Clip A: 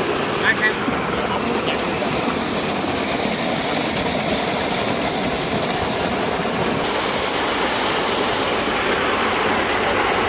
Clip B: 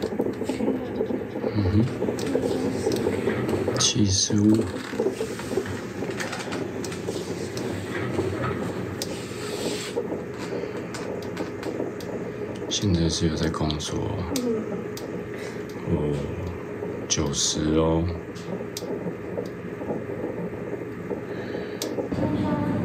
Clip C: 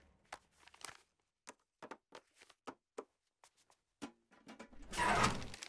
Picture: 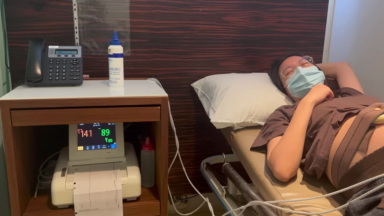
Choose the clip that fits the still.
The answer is B